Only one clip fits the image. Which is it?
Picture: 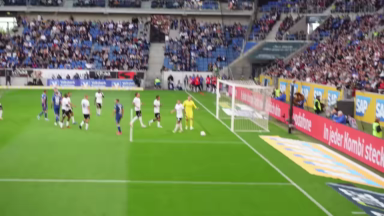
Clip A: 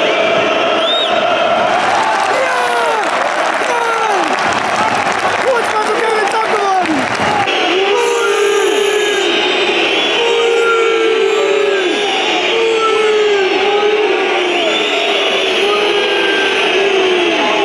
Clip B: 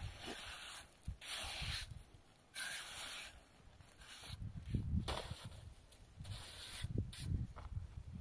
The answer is A